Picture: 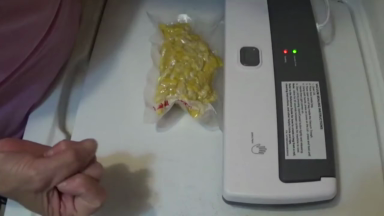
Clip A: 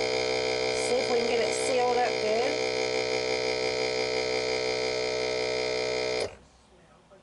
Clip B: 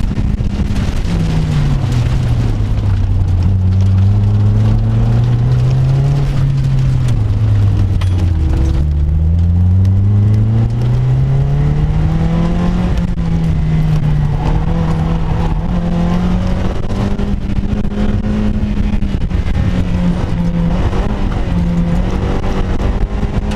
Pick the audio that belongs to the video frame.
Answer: A